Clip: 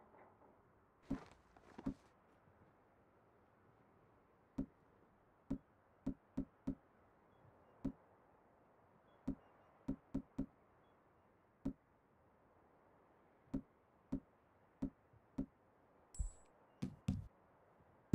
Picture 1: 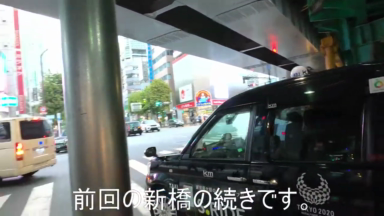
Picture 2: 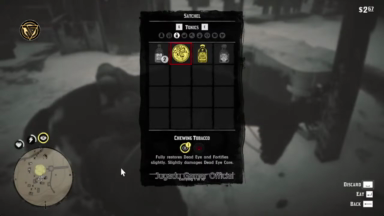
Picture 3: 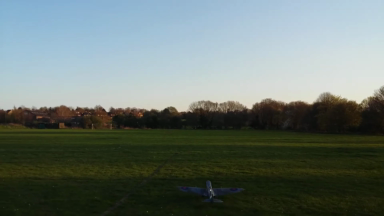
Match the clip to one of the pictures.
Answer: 2